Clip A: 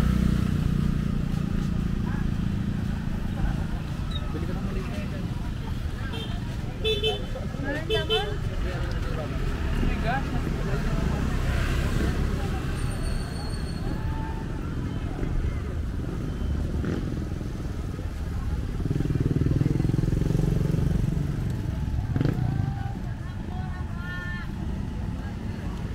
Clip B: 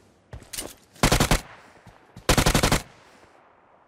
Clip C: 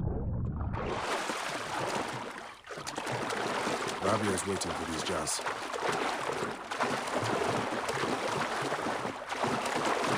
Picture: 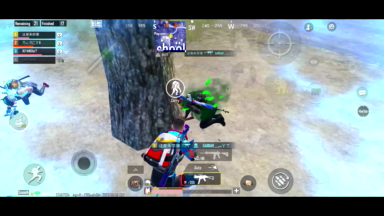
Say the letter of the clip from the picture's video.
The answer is B